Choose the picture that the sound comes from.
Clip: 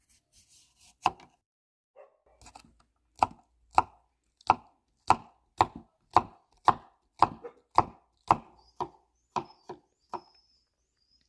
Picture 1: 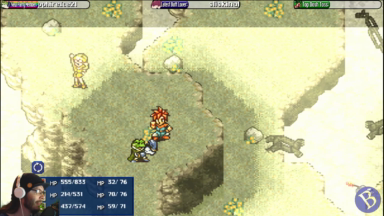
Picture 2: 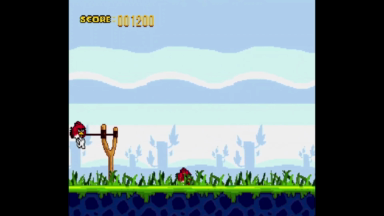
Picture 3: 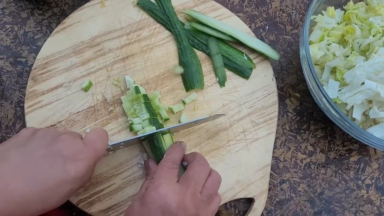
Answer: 3